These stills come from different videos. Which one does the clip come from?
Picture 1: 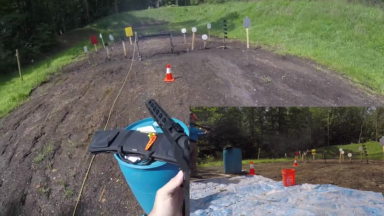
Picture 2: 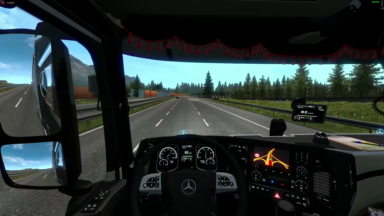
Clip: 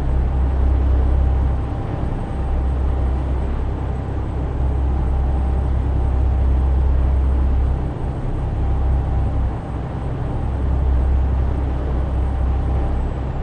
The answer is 2